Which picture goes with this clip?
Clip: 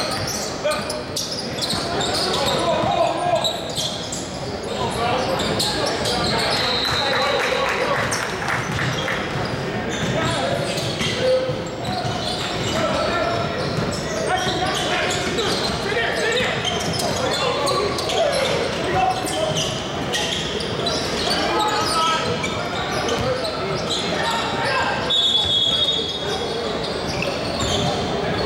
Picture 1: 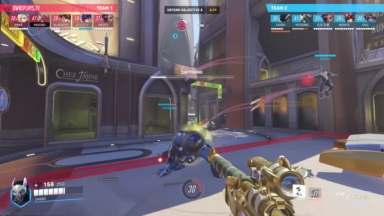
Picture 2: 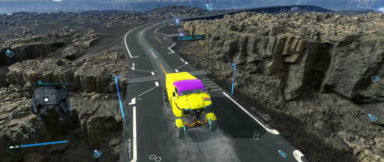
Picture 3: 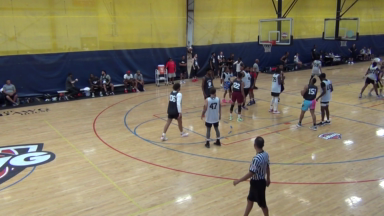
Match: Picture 3